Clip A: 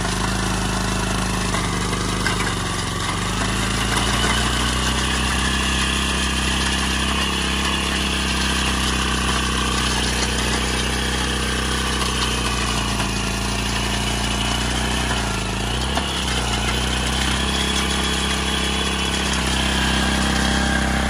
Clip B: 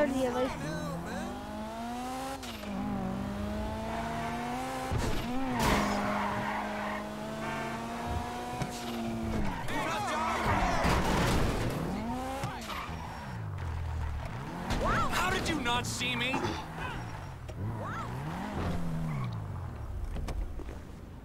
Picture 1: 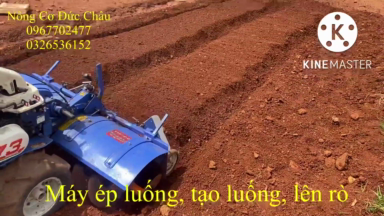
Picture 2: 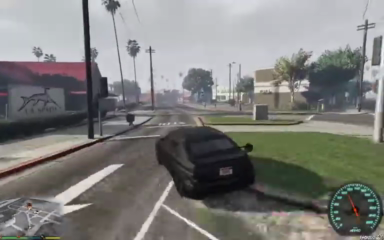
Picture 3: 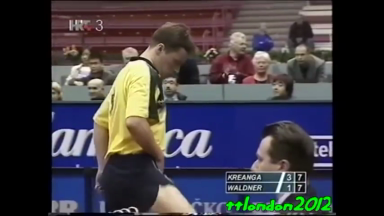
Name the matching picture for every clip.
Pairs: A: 1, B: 2